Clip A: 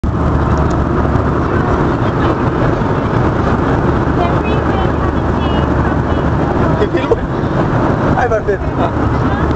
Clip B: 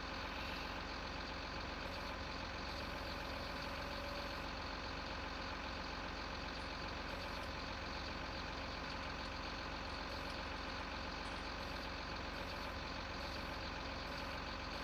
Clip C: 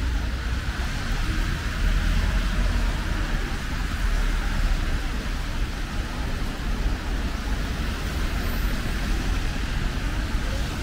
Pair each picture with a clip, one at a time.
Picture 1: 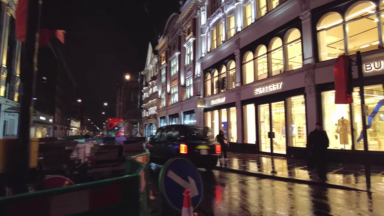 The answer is C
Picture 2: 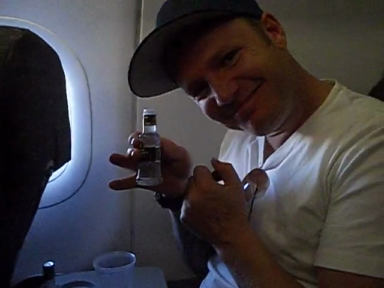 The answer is A